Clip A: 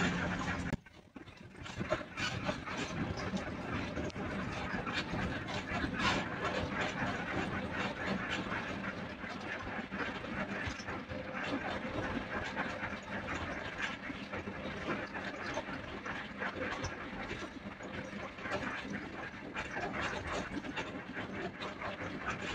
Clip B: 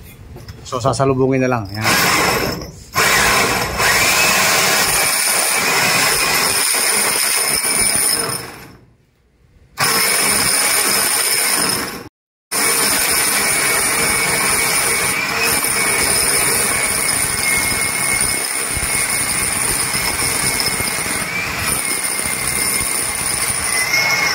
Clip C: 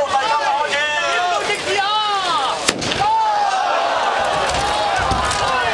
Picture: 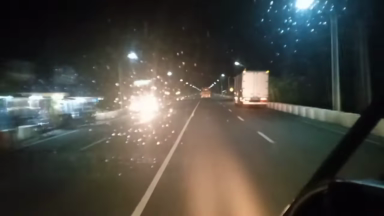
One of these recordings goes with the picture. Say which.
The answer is A